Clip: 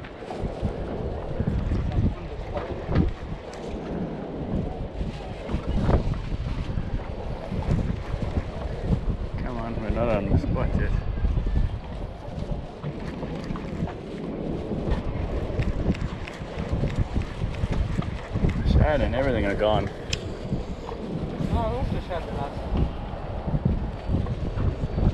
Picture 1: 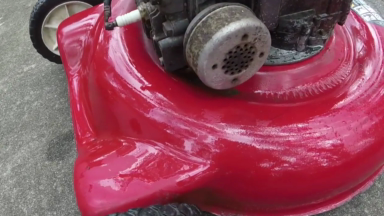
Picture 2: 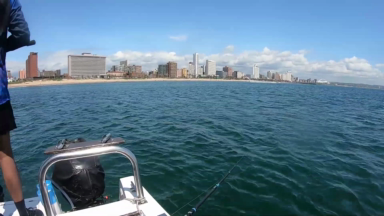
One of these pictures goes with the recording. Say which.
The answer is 2